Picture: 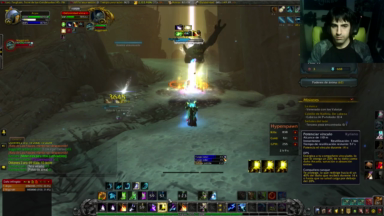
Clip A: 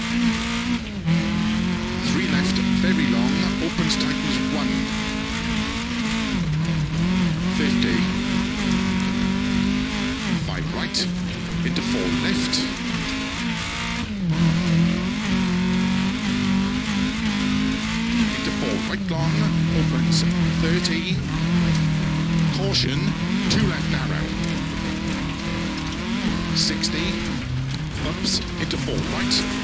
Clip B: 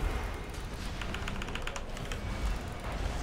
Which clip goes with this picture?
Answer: B